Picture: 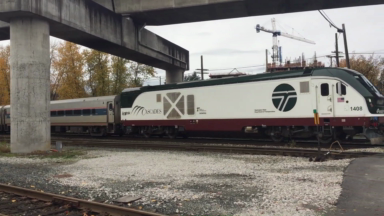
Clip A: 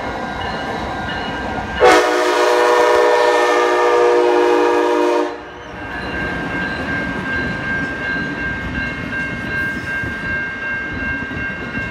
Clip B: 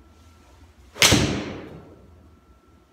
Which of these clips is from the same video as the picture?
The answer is A